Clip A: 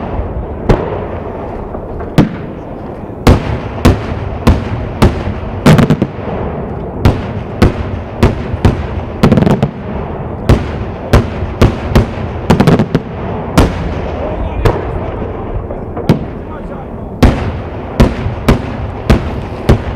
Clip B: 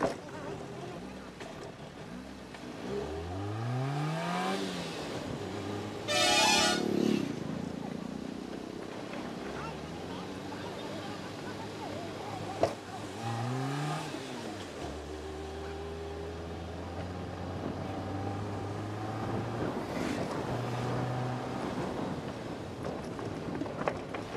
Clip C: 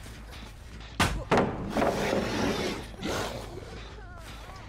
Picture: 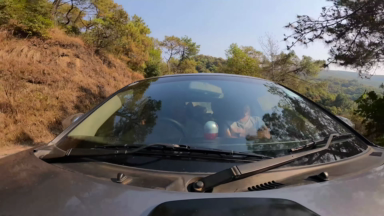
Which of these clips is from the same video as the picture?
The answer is B